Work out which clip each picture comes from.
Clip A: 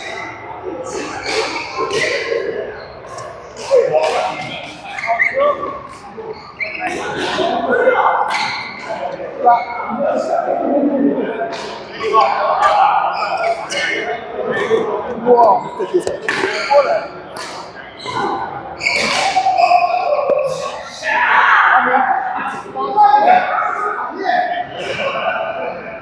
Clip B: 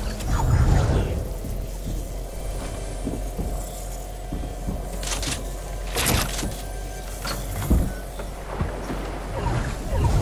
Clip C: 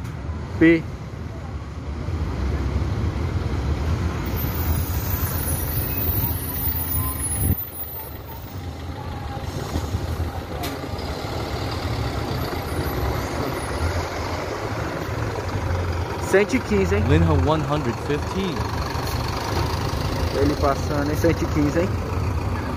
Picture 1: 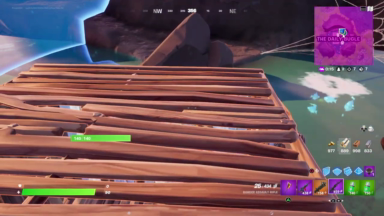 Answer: B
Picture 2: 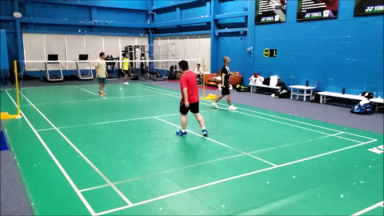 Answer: A